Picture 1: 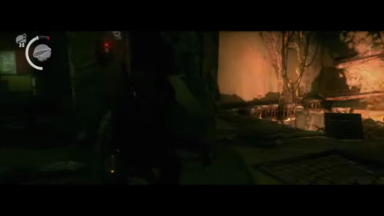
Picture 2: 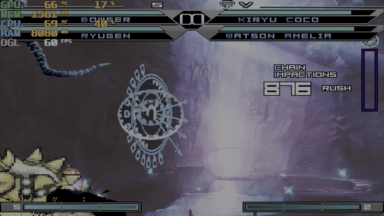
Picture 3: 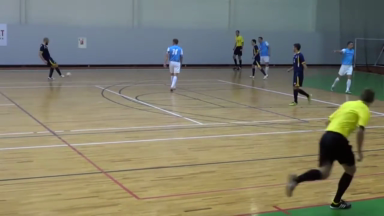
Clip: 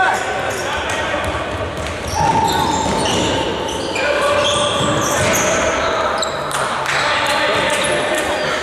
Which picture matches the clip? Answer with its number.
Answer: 3